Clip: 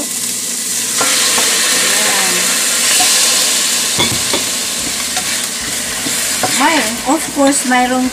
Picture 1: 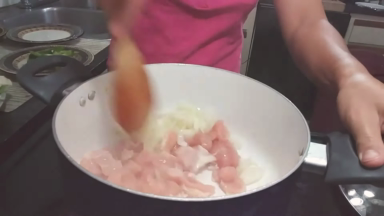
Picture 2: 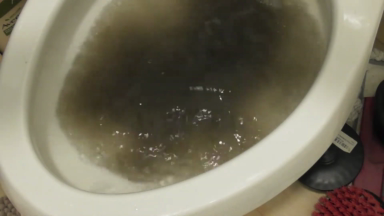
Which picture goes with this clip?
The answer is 1